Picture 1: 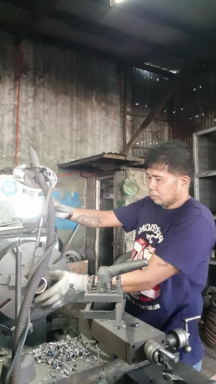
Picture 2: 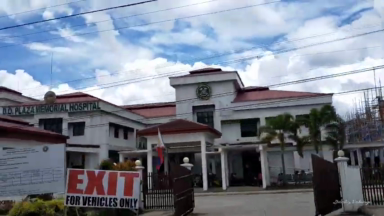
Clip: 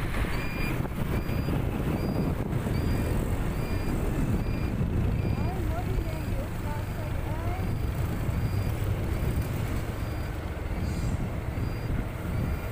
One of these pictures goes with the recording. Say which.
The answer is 2